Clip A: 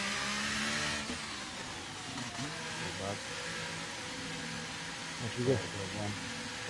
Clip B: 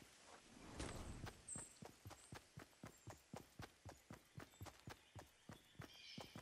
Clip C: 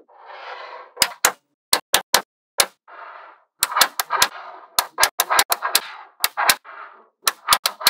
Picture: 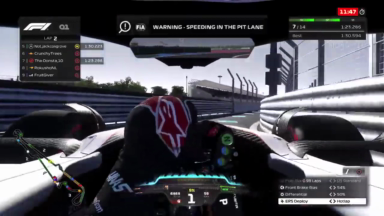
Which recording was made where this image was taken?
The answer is A